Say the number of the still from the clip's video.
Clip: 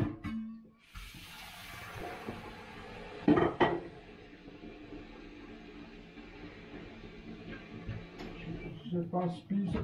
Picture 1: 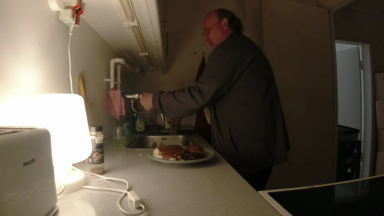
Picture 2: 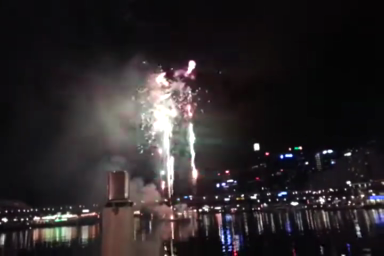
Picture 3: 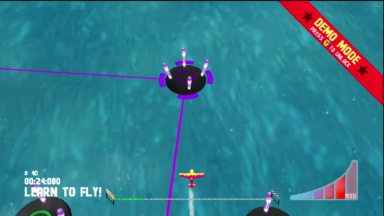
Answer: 1